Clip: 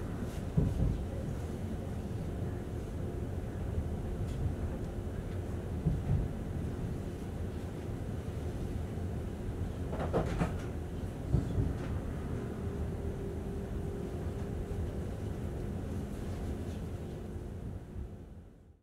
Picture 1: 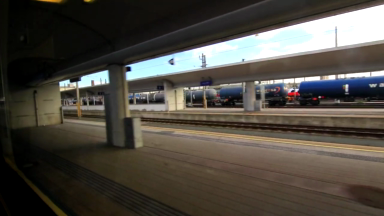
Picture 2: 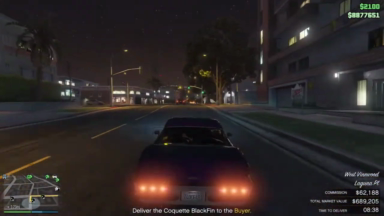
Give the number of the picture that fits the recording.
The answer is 1